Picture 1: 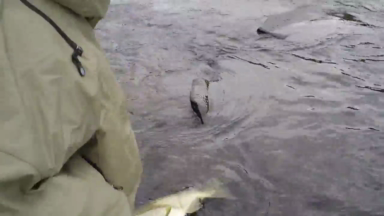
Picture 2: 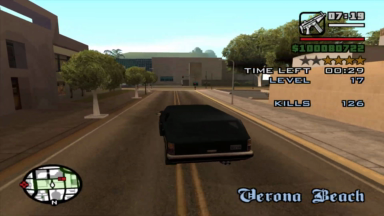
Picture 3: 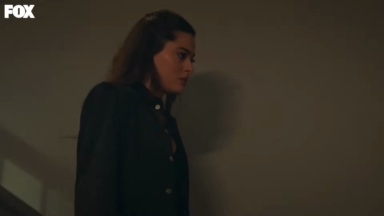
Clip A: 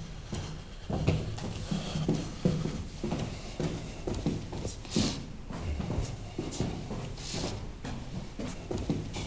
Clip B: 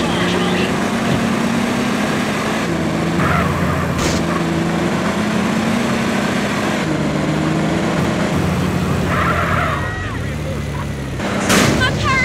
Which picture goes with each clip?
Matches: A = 3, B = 2